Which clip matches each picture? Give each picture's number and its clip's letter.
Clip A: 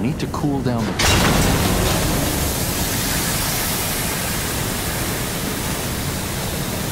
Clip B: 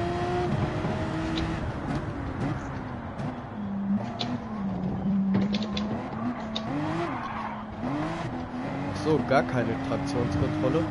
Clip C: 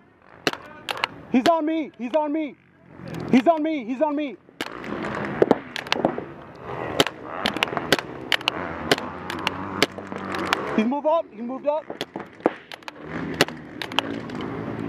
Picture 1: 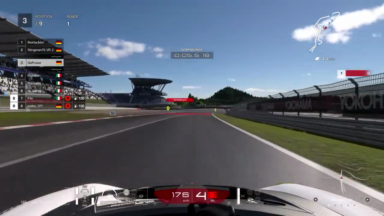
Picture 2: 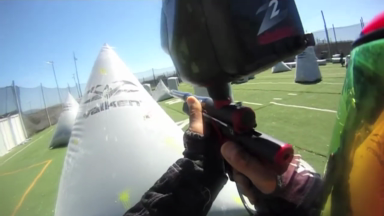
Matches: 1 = B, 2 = C